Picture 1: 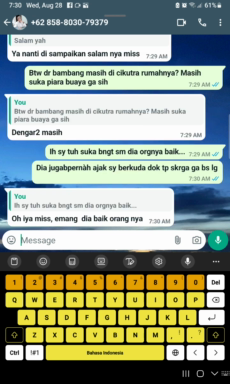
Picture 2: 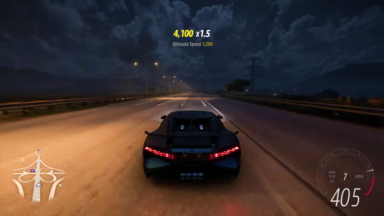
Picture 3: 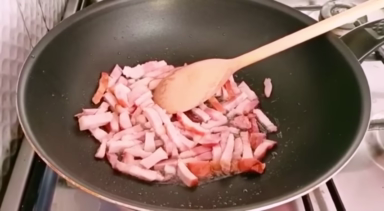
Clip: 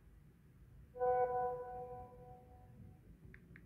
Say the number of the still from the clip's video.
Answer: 1